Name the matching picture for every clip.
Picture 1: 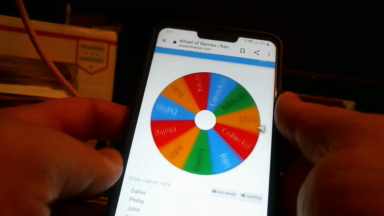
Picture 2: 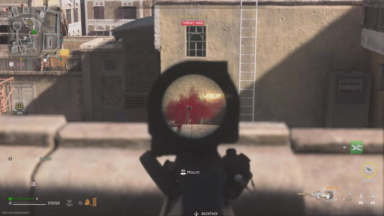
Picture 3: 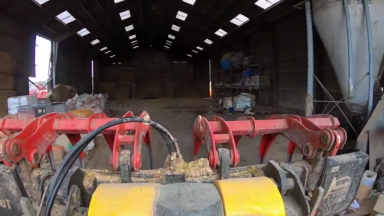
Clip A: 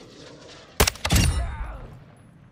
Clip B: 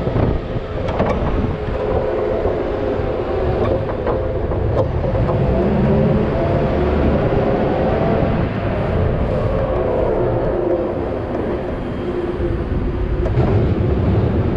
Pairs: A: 2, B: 3